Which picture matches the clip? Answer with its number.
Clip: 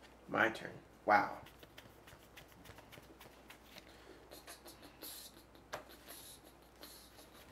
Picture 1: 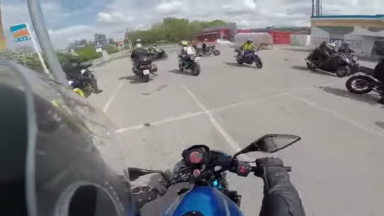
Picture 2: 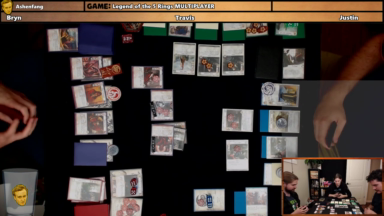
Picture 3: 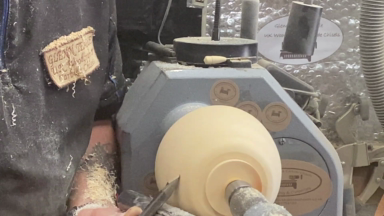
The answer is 2